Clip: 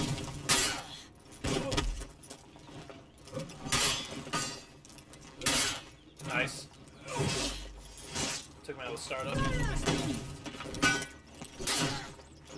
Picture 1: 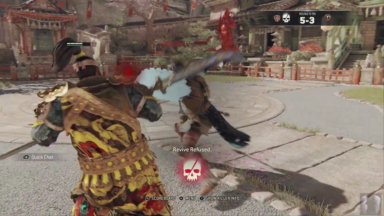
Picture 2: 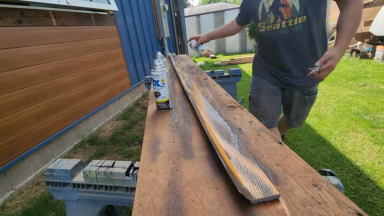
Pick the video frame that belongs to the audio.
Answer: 1